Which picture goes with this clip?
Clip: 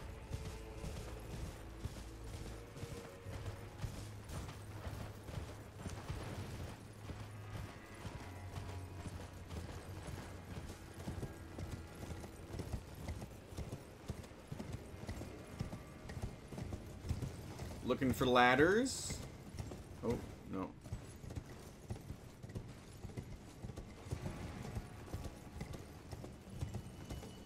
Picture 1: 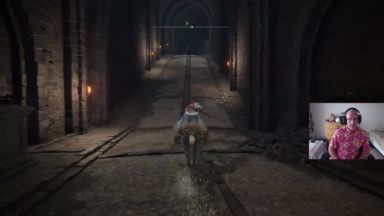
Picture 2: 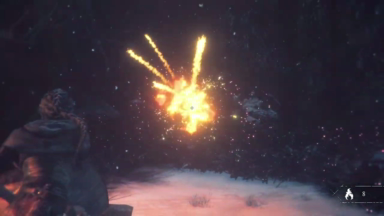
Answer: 1